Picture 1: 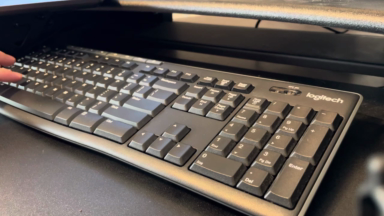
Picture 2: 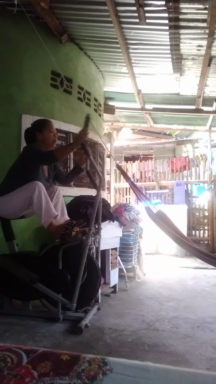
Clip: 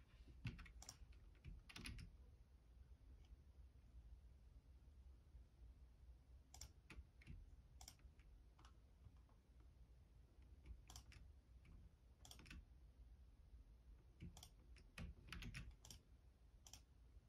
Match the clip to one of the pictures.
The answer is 1